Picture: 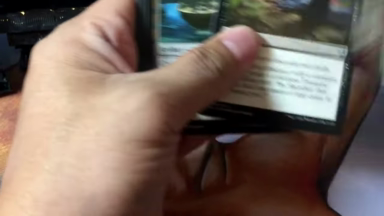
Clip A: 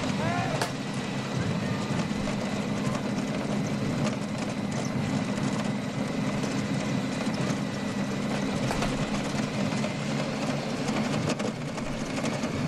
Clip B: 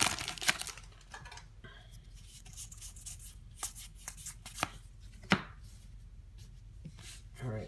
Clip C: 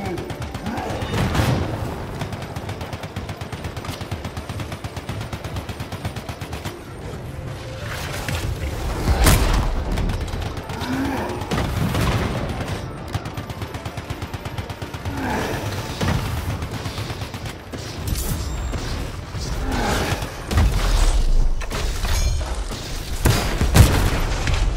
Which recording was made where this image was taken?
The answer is B